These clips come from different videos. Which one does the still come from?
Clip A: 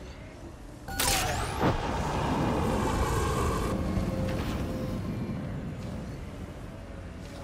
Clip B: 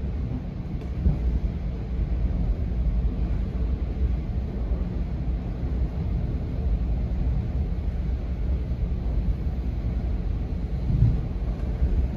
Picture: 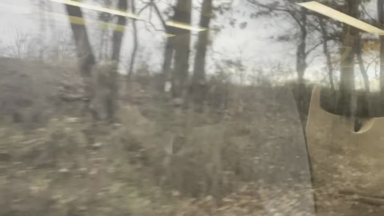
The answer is B